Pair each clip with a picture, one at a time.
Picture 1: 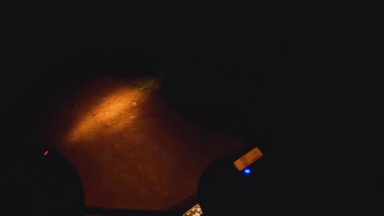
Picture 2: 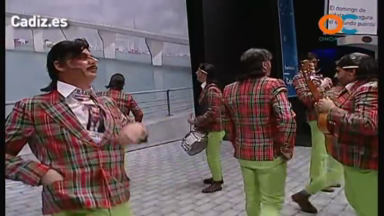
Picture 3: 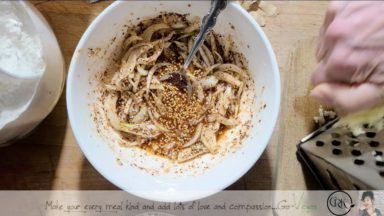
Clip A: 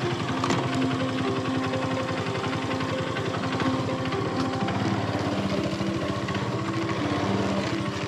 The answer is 1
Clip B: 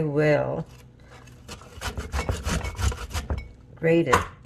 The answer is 3